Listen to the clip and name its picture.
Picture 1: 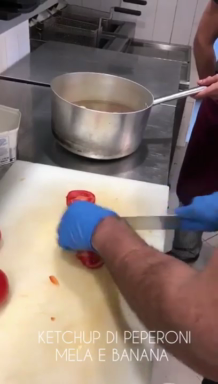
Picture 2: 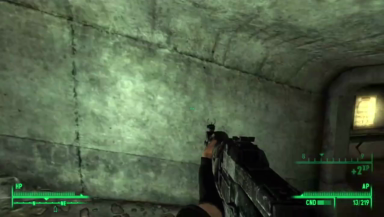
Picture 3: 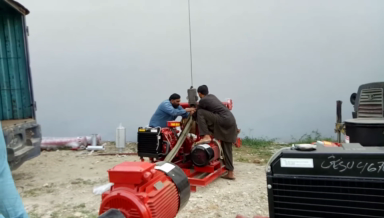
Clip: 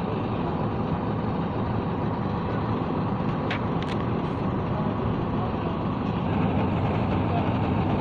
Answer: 3